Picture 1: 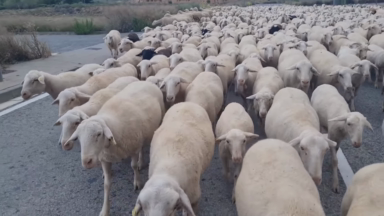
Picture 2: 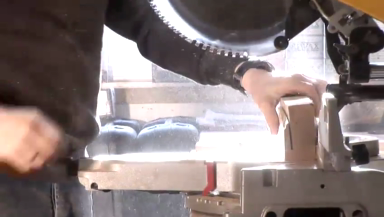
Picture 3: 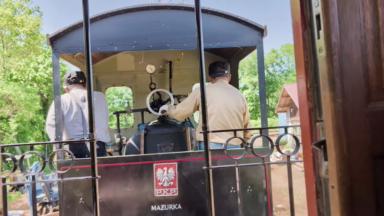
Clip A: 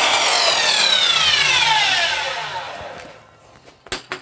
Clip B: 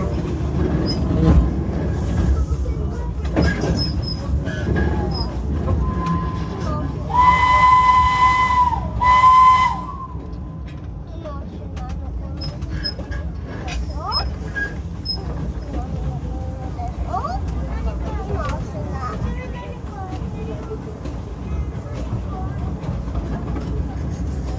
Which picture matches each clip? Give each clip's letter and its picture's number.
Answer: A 2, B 3